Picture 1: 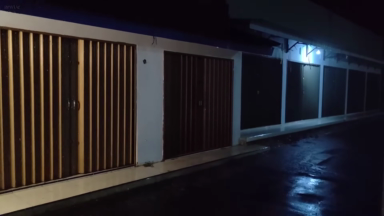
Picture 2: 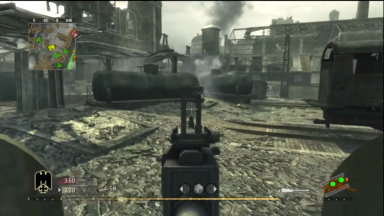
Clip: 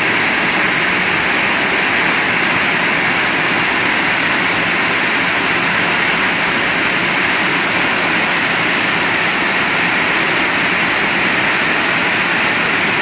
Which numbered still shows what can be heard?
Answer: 1